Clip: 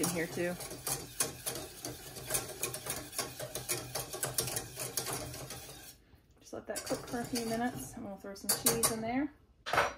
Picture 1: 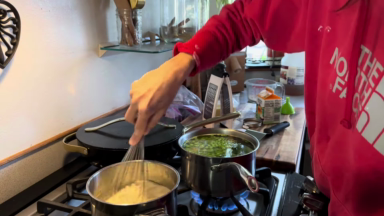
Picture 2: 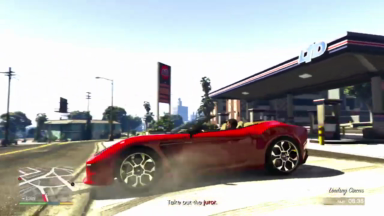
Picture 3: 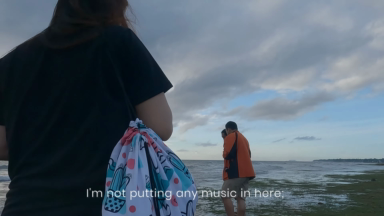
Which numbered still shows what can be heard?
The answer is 1